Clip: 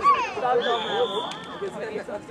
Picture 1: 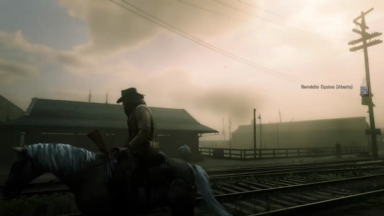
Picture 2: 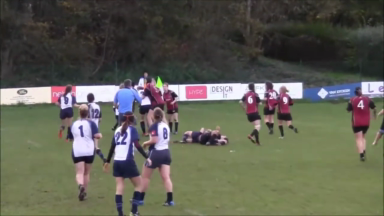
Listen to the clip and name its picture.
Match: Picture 2